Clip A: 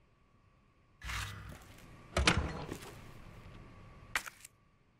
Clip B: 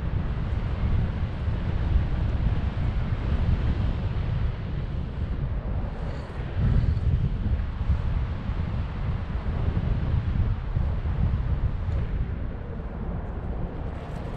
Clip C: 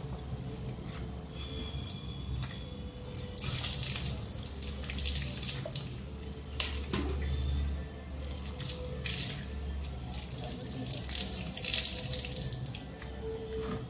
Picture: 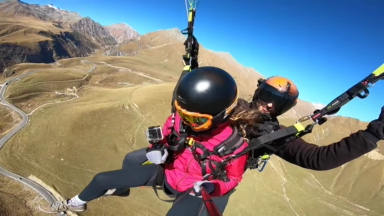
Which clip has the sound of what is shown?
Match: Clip B